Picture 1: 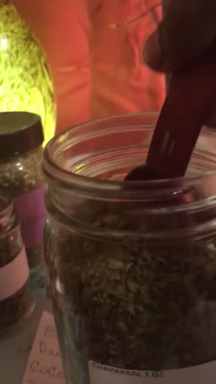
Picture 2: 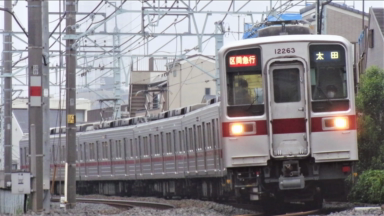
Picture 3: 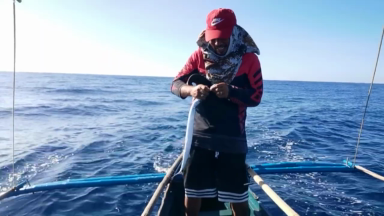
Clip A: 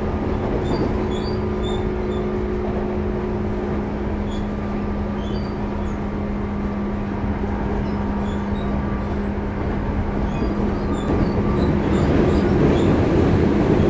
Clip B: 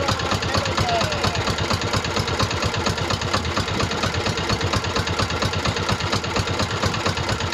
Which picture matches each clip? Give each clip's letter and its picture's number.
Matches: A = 2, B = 3